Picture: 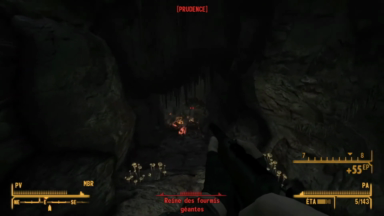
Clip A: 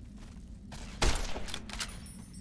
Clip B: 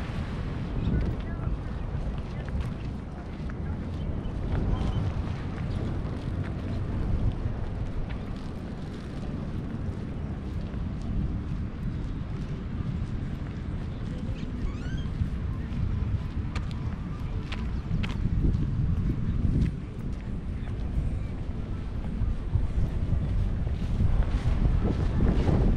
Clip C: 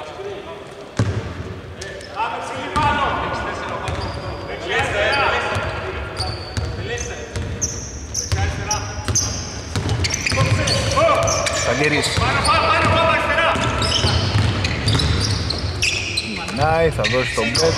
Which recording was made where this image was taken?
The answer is A